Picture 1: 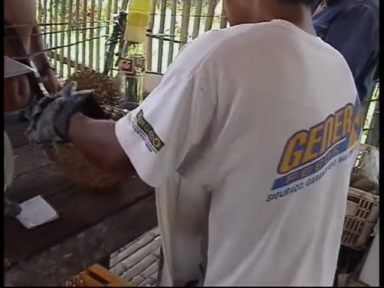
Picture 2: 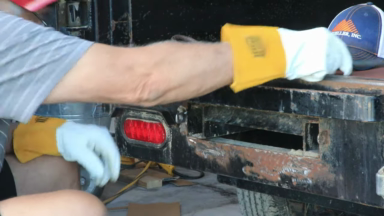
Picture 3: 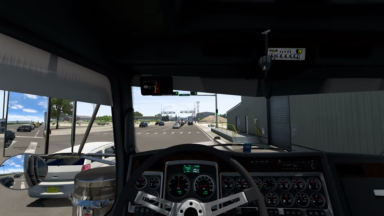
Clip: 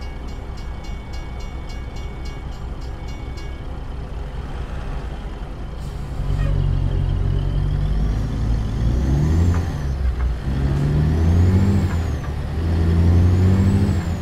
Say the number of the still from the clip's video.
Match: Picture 3